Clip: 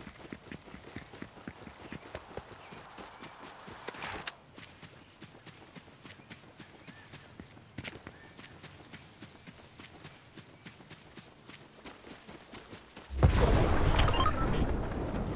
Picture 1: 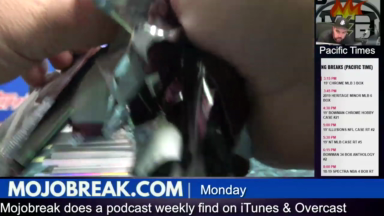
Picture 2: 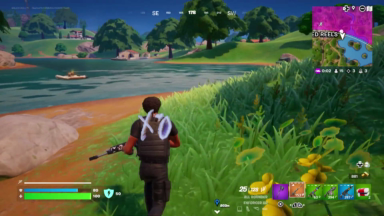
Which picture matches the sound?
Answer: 2